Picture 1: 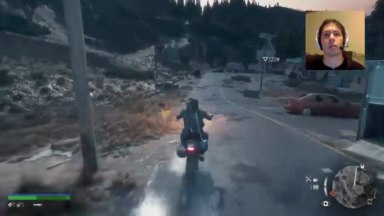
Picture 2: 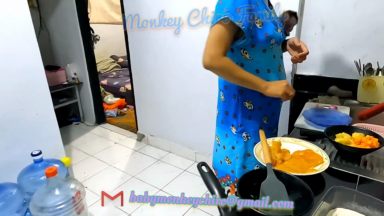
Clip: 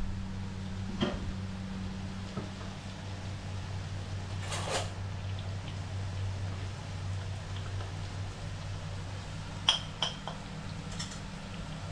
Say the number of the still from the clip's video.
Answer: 2